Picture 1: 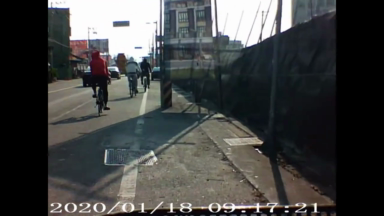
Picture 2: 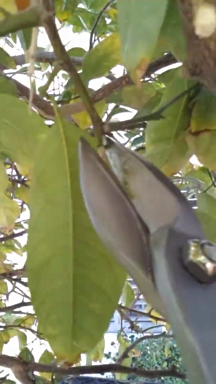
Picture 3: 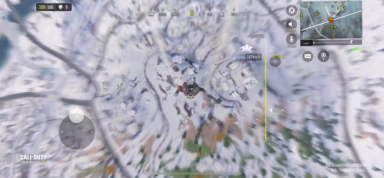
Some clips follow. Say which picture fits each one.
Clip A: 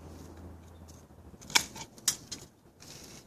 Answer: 2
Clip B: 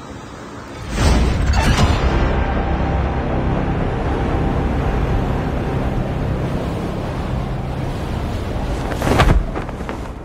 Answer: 3